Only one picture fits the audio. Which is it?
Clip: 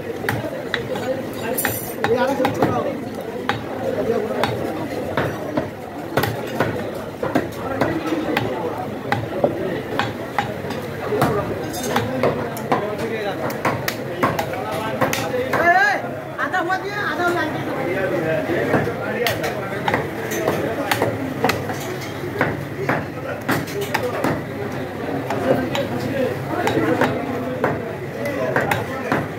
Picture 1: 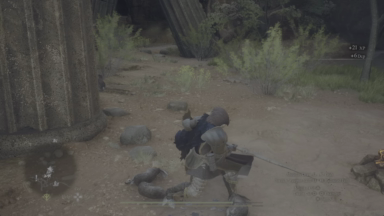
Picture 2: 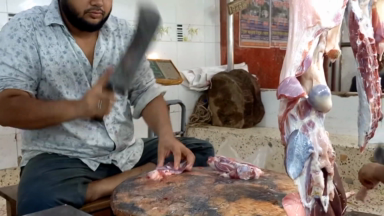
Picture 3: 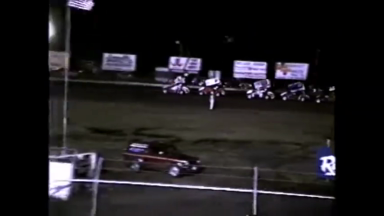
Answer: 2